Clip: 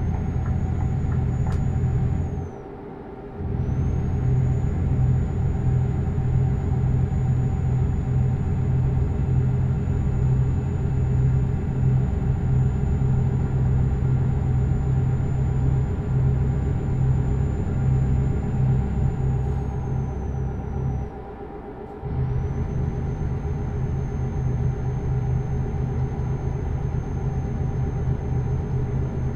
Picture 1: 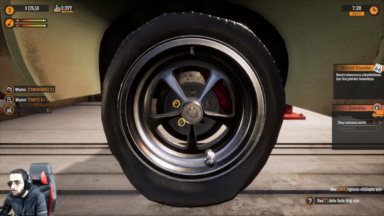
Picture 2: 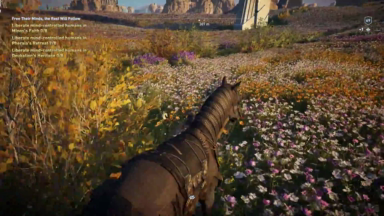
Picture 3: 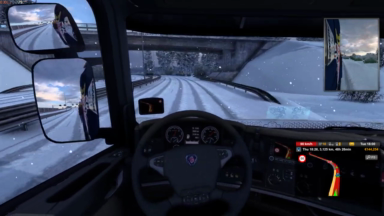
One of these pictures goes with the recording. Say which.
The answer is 3